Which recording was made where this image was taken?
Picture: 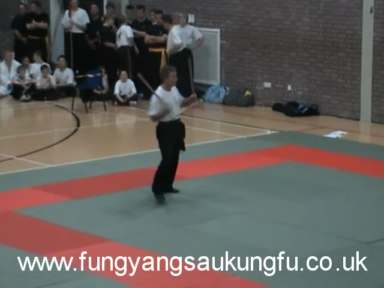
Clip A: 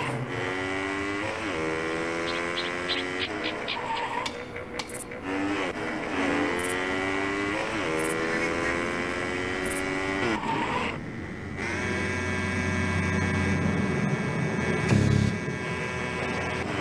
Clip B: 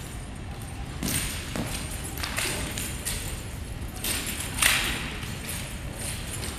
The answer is B